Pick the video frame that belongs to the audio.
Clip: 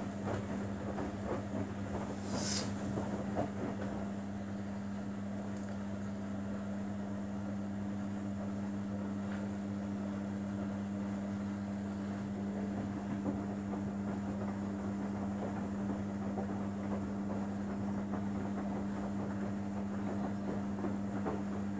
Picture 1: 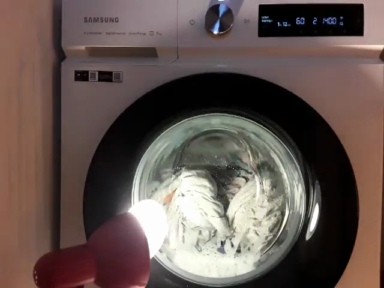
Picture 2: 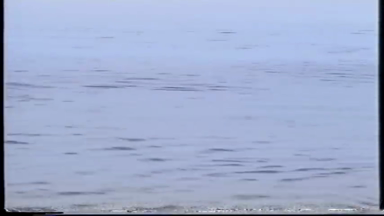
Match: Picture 1